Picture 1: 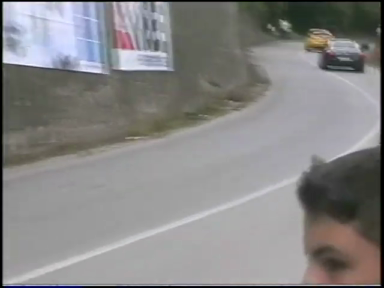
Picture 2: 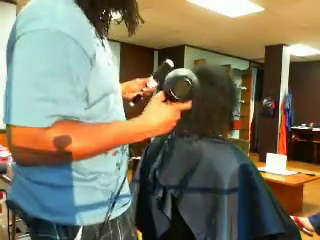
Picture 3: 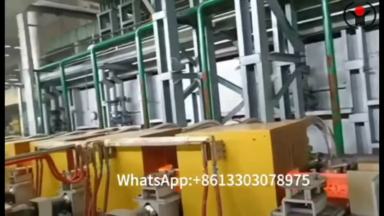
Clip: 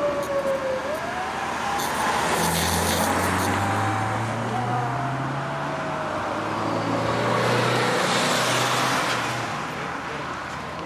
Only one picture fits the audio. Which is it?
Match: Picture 1